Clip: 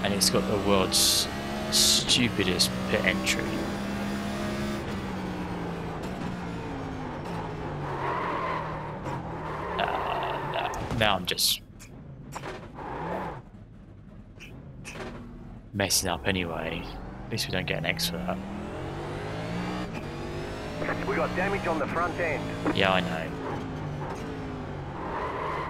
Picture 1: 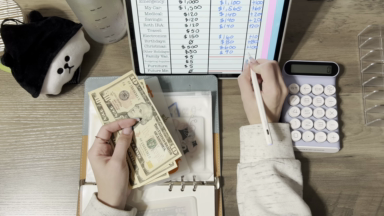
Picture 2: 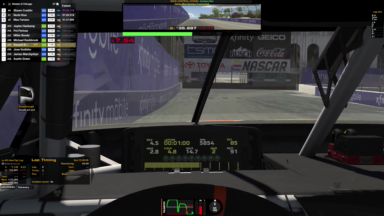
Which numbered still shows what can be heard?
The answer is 2